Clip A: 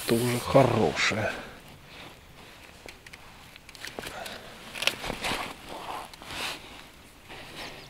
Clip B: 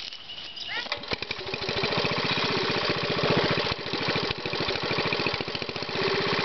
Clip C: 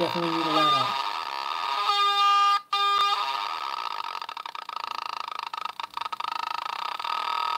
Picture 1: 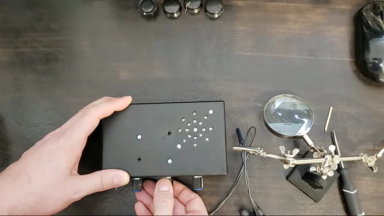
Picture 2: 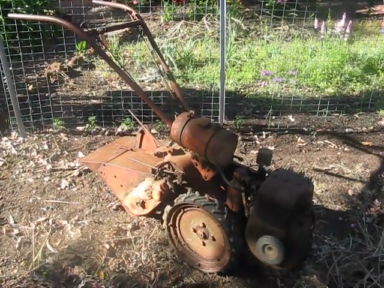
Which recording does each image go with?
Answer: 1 C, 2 B